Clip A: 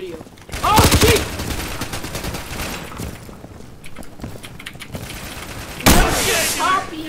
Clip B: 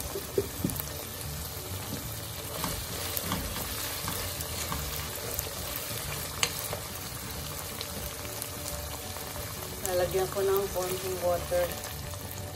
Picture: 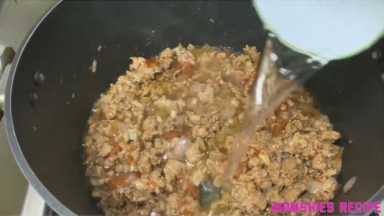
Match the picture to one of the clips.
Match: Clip B